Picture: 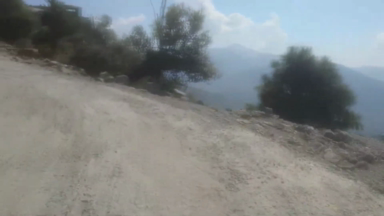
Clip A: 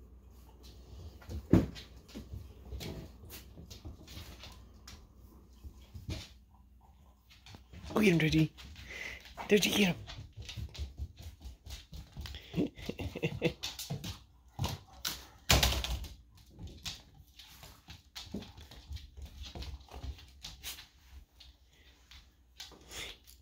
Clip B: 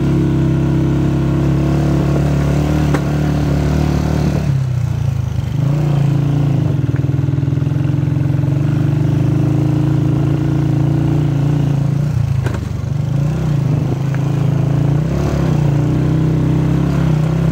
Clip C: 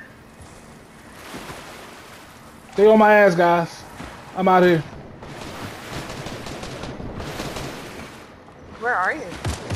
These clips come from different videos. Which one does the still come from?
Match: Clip B